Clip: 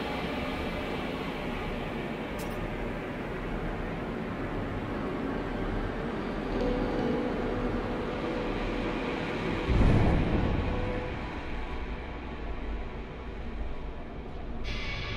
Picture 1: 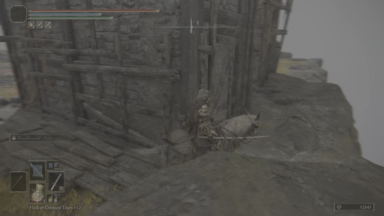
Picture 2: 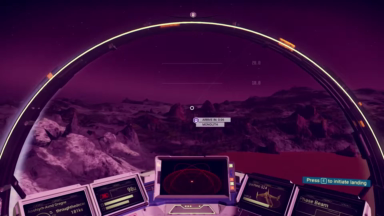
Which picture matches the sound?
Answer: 2